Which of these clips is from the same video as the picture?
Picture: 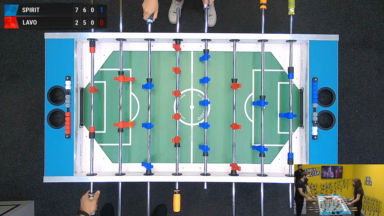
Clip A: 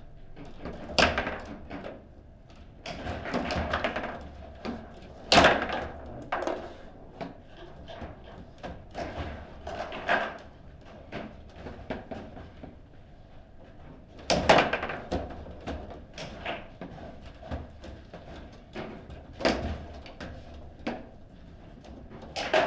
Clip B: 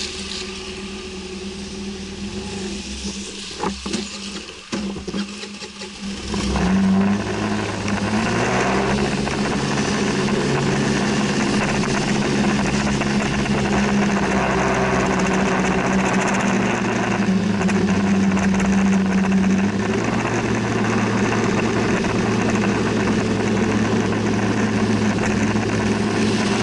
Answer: A